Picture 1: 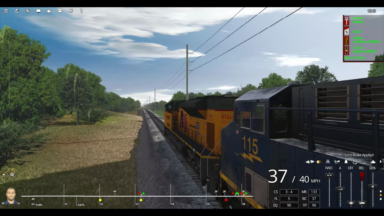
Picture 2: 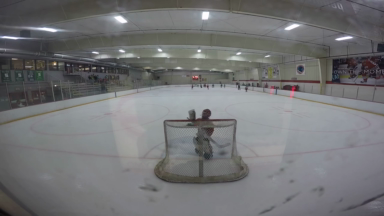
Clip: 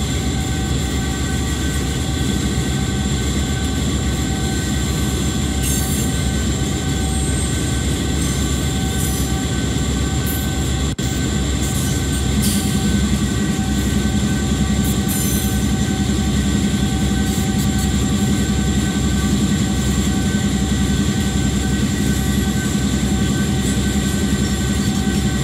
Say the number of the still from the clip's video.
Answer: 1